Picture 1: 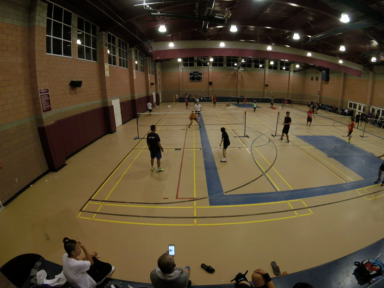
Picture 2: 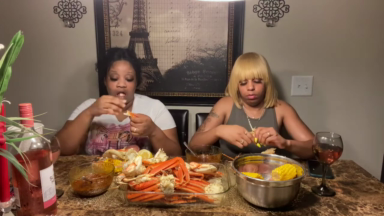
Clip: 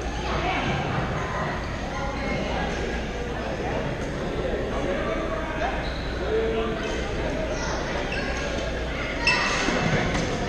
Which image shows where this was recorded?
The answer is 1